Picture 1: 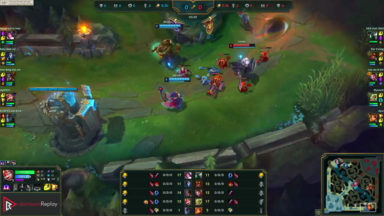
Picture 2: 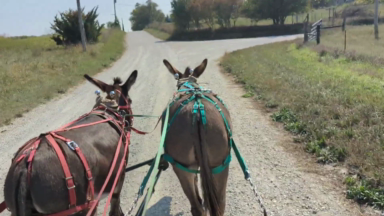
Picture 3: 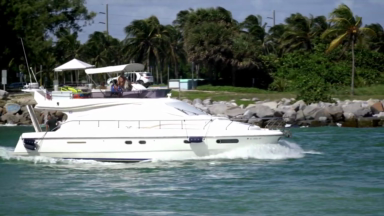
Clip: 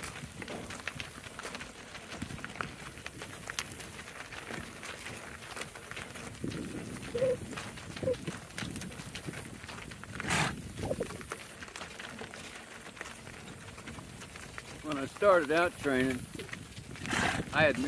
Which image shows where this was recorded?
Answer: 2